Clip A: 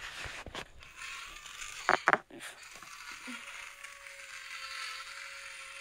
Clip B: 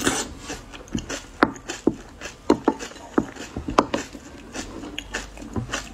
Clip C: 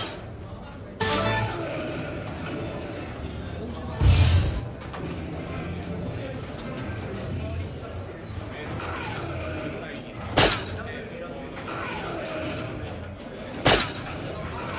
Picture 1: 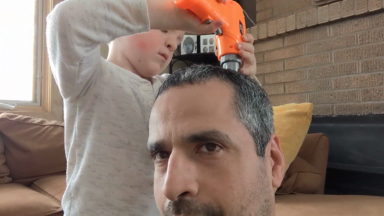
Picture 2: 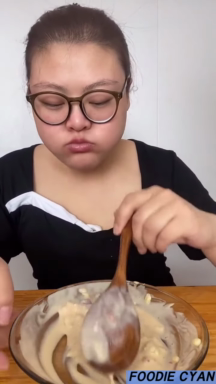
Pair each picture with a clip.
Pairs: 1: A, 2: B